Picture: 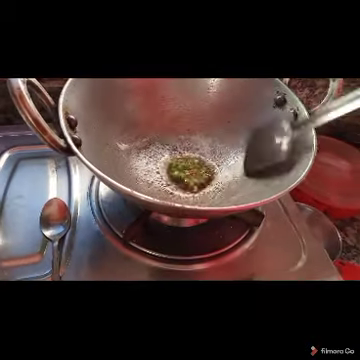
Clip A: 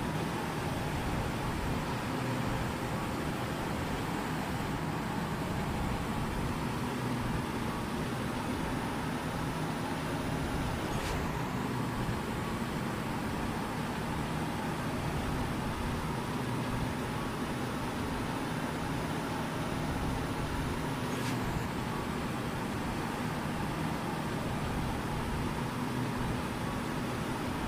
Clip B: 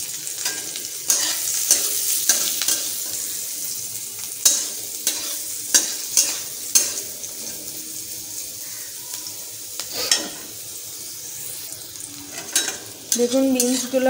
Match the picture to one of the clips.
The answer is B